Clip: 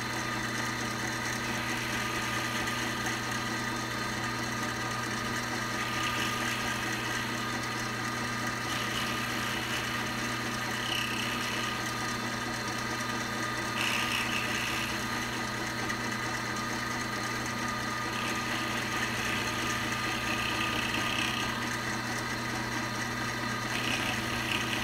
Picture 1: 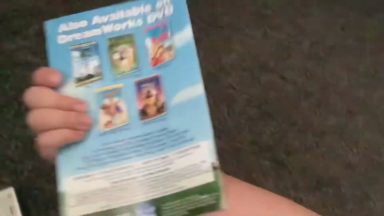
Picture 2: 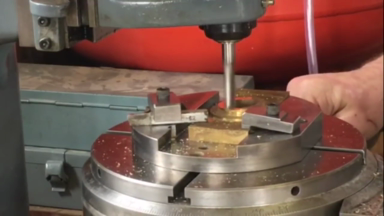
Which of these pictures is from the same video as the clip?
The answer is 2